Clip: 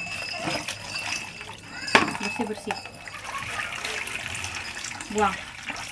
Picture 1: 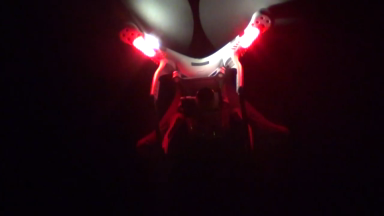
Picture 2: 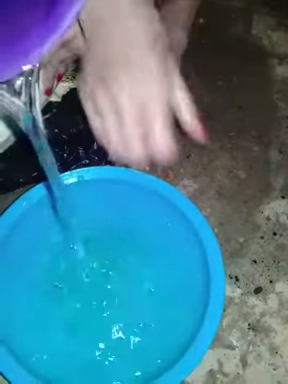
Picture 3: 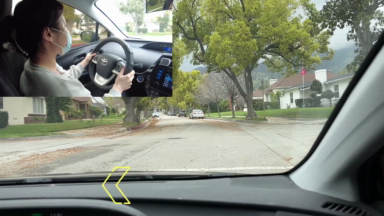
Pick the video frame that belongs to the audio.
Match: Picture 2